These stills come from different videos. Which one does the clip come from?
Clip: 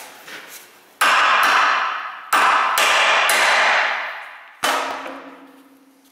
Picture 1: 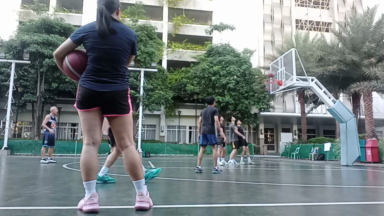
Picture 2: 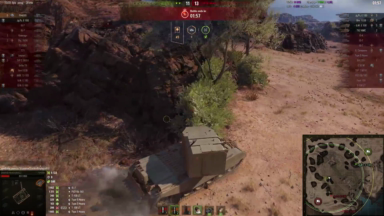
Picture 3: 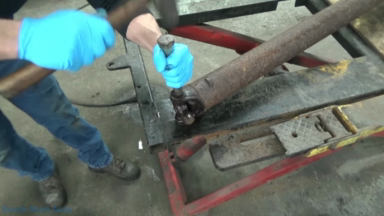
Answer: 3